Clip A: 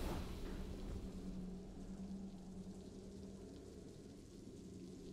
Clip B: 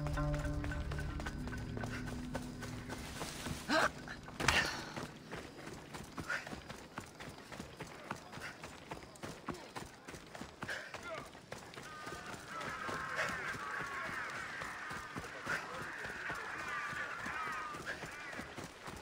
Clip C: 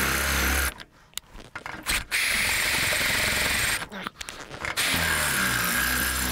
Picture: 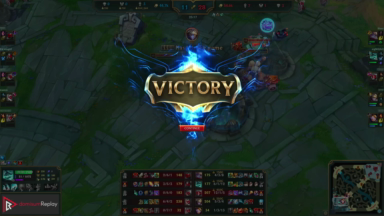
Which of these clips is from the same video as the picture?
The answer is A